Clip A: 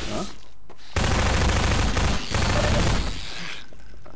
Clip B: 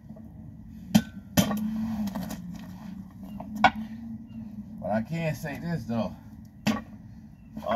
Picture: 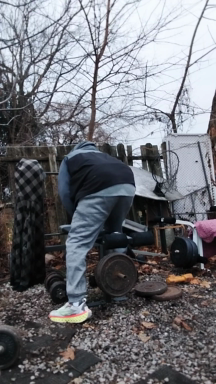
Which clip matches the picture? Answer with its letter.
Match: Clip B